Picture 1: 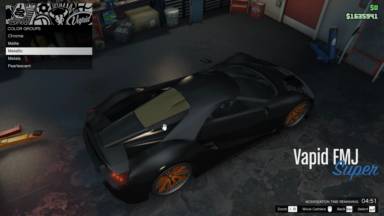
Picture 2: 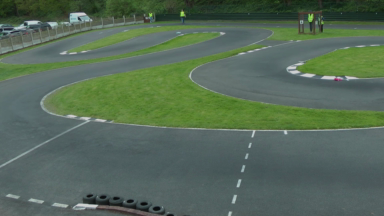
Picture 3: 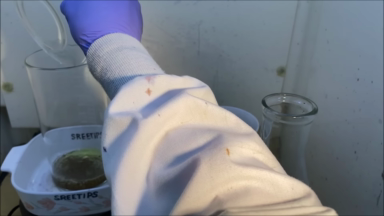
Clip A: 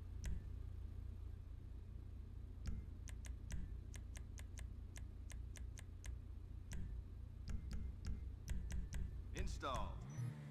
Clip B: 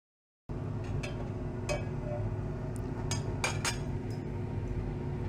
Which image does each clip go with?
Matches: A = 1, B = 3